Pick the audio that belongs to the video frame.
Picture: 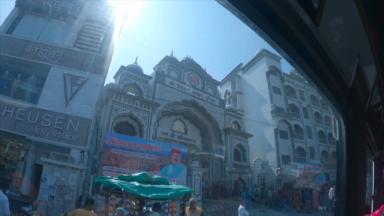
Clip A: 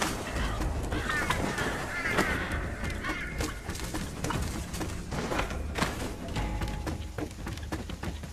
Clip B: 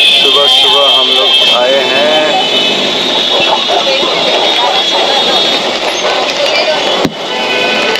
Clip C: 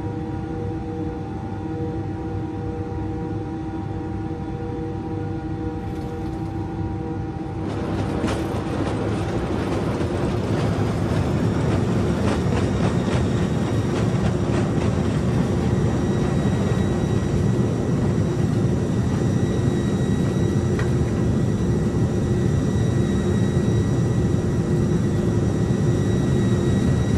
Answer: B